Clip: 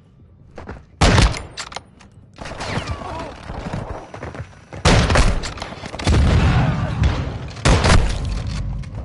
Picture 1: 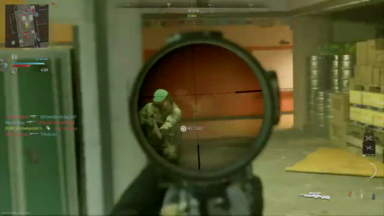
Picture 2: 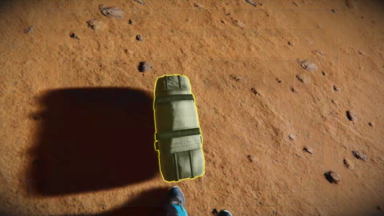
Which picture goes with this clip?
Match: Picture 1